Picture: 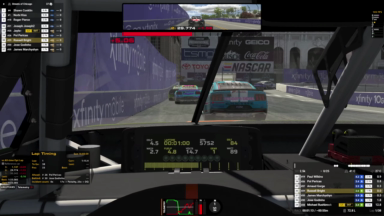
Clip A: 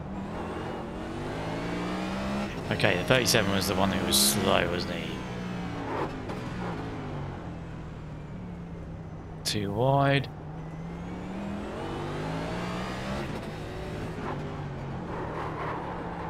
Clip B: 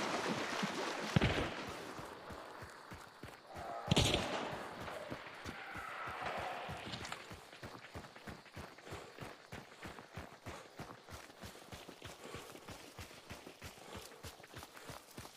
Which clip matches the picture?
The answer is A